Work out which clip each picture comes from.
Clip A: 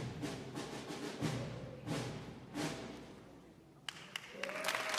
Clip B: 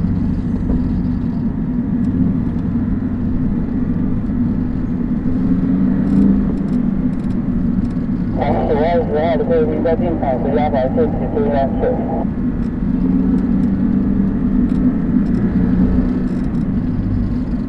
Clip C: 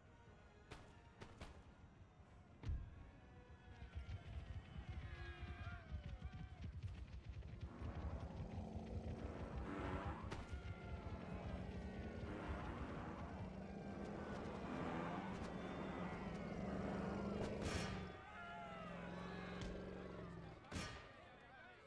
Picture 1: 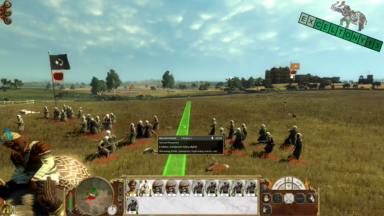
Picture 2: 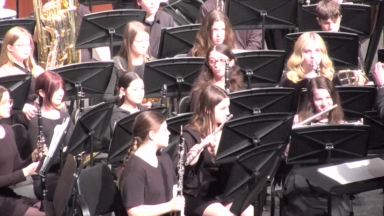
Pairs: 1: C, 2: A